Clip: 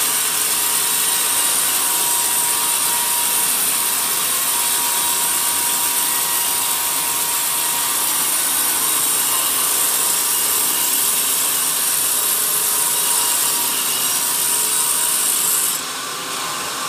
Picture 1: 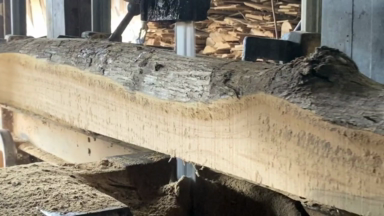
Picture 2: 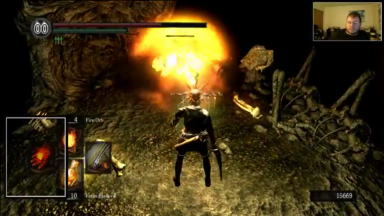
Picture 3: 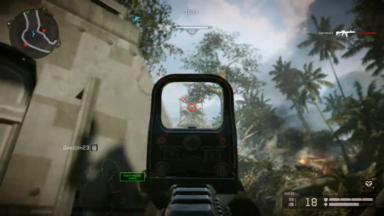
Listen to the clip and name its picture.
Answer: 1